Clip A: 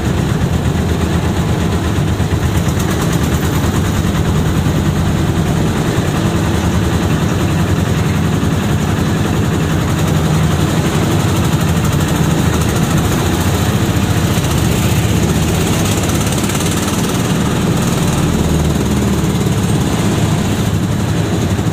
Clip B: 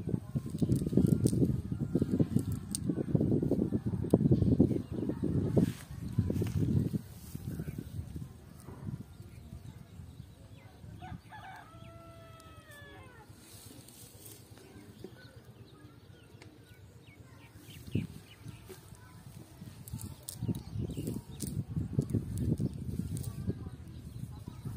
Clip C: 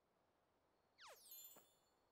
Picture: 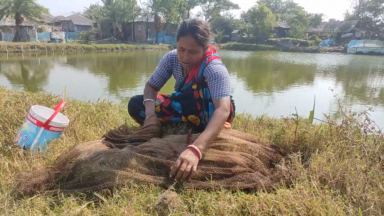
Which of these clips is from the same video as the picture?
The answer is B